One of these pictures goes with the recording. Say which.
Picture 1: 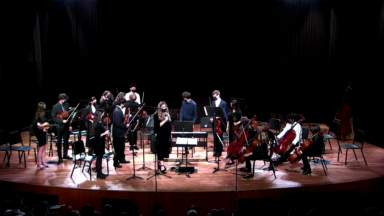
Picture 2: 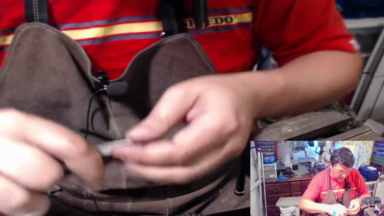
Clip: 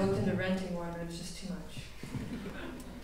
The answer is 1